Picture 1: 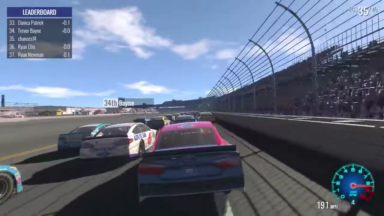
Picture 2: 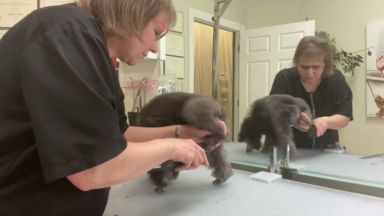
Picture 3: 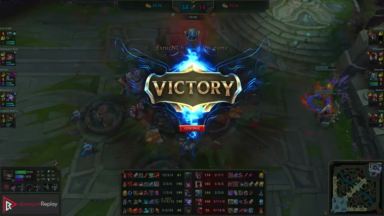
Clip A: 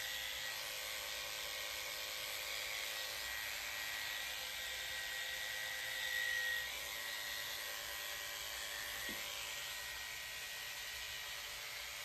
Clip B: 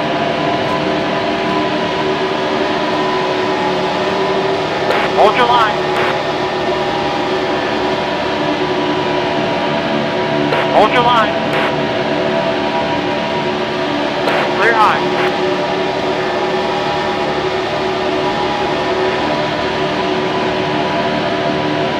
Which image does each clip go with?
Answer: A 2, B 1